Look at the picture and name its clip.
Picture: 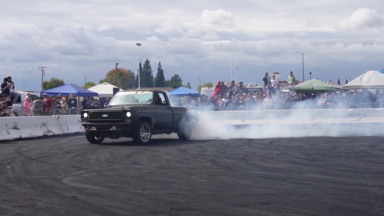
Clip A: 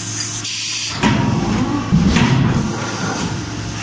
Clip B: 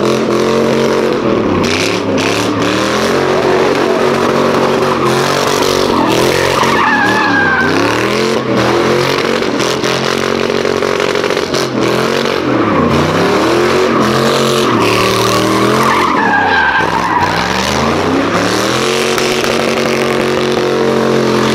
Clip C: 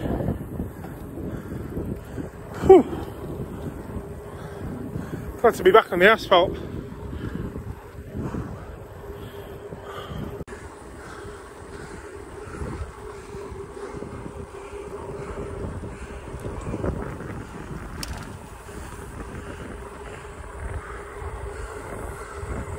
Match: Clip B